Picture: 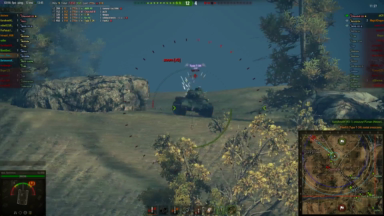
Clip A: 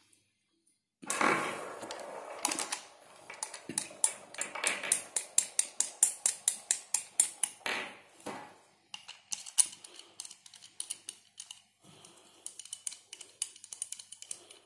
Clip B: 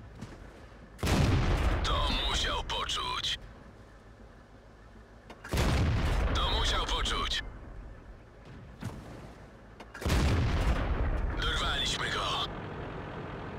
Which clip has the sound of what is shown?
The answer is B